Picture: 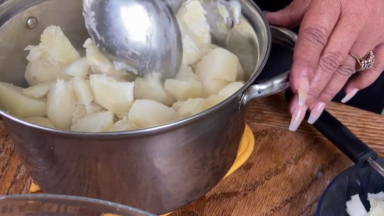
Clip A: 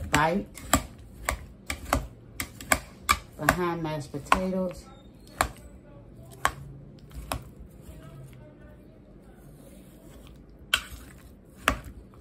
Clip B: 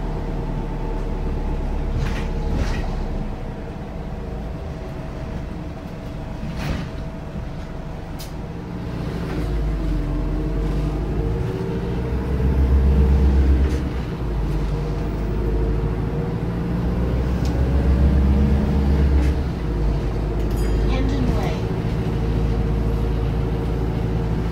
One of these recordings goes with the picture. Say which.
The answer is A